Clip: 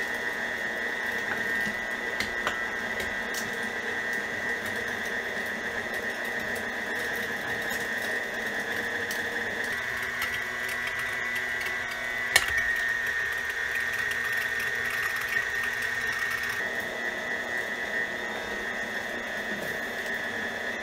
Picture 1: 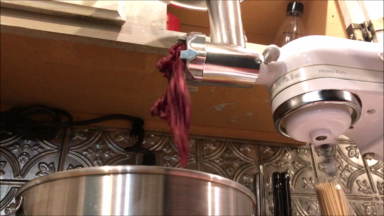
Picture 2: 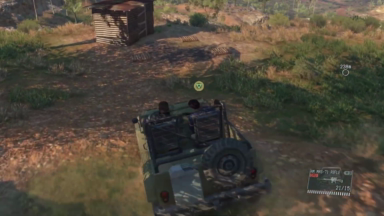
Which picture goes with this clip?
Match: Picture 1